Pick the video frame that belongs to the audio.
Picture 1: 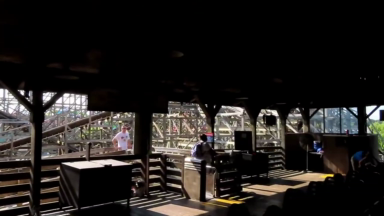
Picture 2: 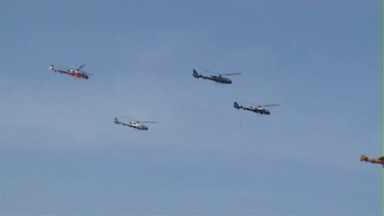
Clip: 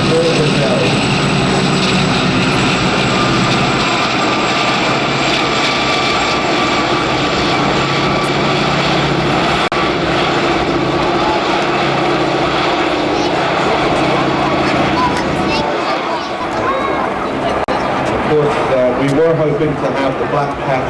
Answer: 2